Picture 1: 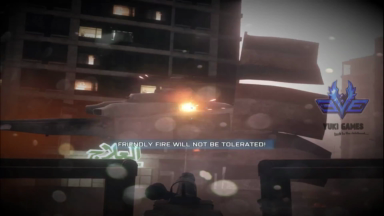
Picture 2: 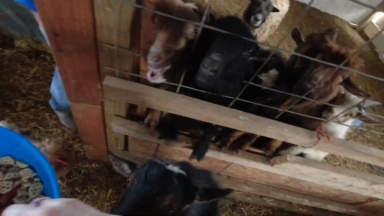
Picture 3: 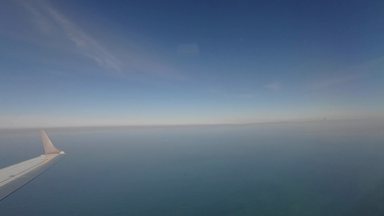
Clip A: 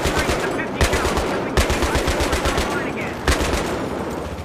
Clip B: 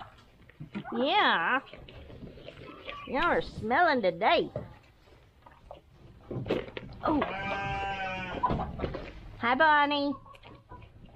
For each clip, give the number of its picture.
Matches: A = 1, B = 2